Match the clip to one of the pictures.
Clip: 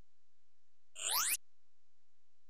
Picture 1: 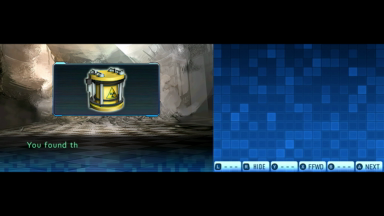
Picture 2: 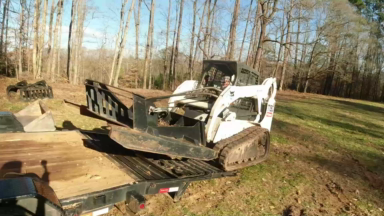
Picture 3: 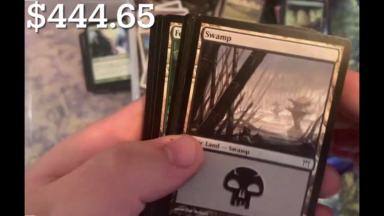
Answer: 1